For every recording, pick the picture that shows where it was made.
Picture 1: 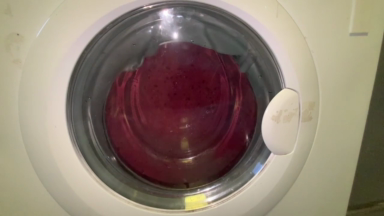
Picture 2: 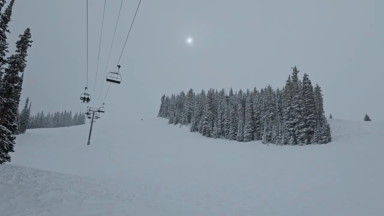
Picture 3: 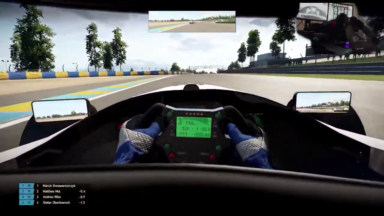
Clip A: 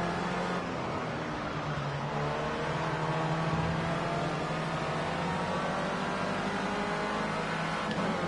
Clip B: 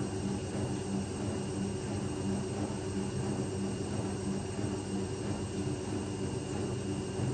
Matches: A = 3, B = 1